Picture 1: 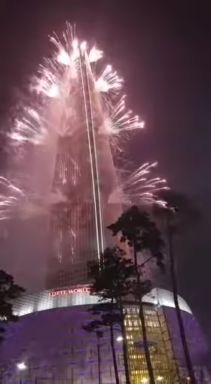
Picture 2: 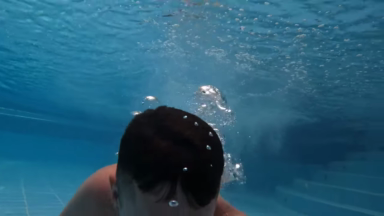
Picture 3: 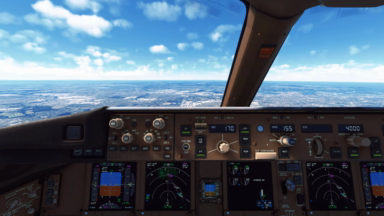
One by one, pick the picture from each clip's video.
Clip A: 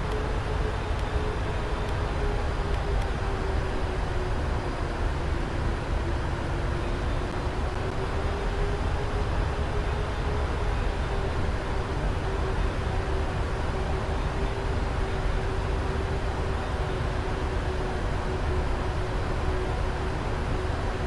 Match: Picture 3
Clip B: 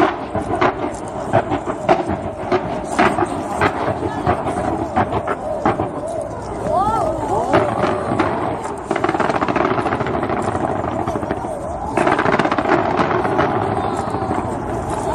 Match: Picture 1